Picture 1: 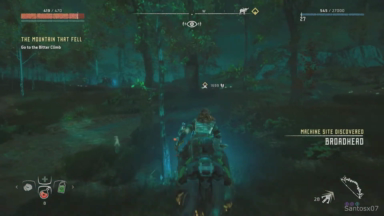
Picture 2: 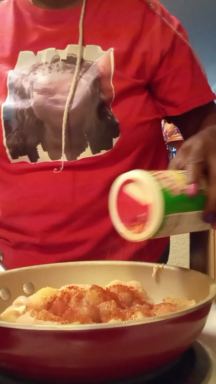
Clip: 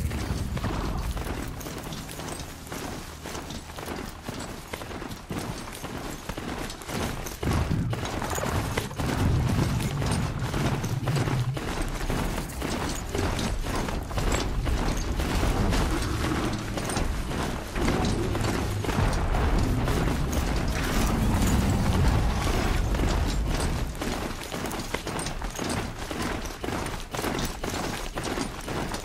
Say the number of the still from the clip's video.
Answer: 1